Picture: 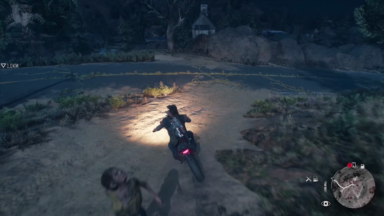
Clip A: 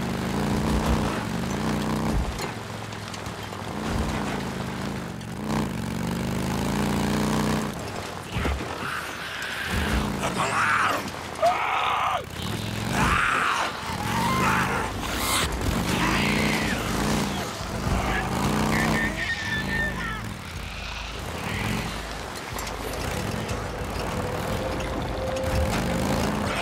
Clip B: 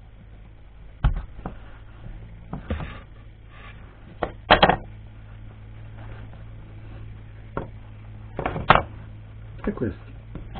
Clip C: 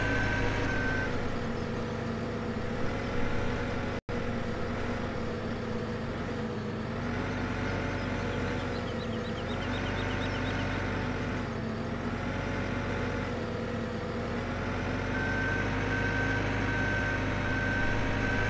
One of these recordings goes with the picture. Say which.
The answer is A